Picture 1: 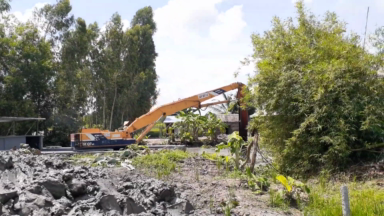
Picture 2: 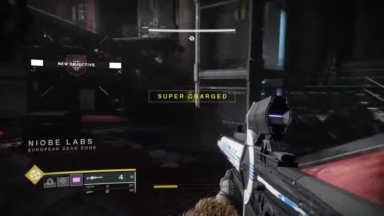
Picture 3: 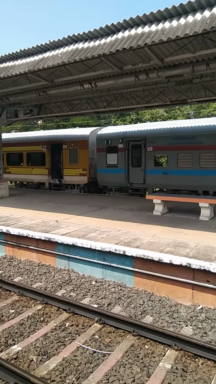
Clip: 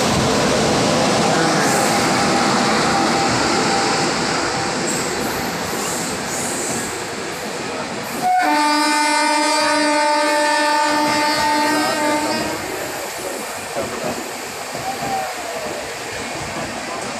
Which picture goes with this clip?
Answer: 3